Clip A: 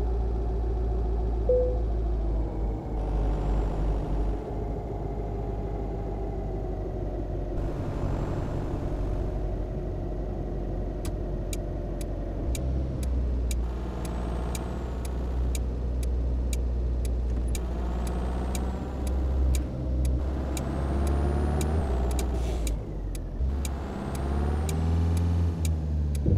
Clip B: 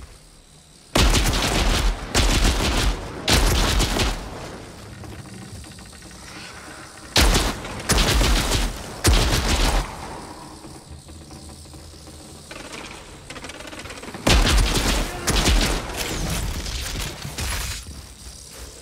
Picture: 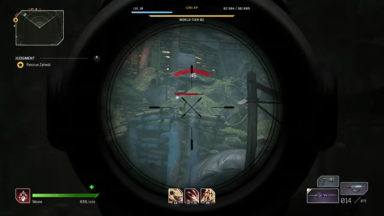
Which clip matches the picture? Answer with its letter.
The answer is B